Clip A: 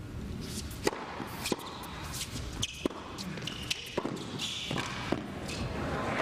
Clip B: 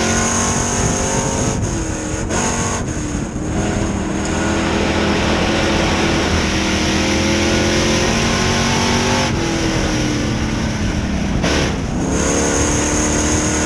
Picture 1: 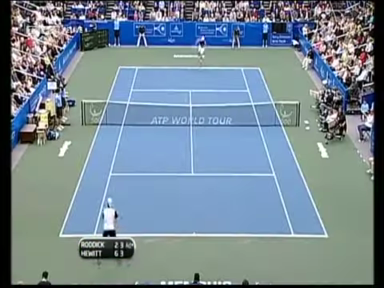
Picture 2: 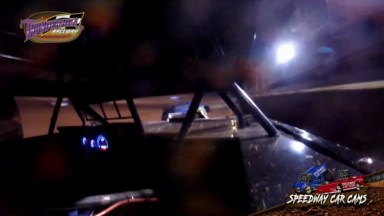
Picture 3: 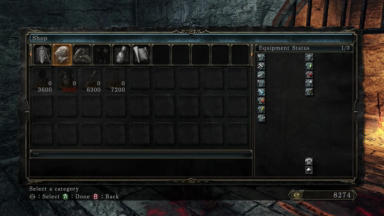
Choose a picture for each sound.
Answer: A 1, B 2